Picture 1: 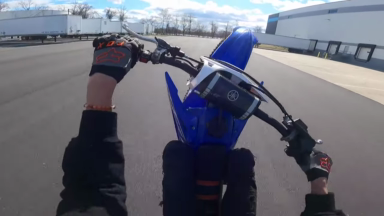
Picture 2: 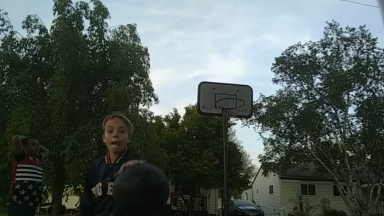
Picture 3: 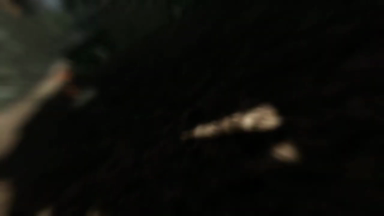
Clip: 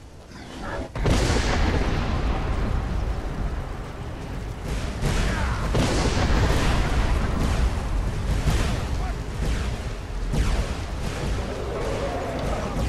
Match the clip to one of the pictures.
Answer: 3